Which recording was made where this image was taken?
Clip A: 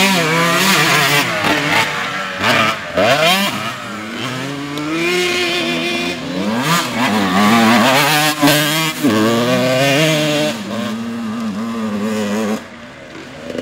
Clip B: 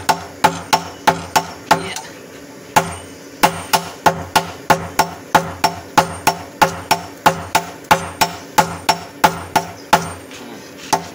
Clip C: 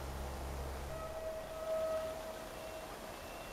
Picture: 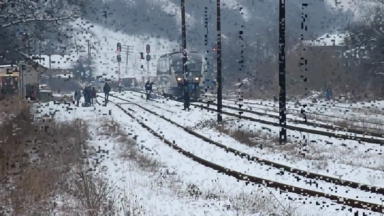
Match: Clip C